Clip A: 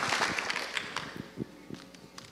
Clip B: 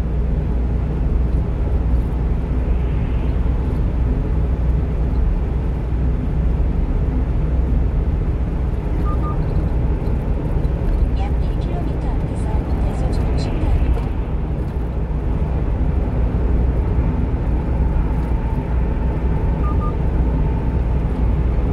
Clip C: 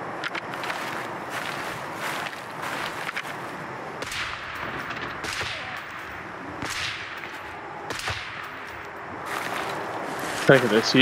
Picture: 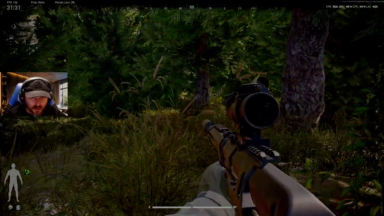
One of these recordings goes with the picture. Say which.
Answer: C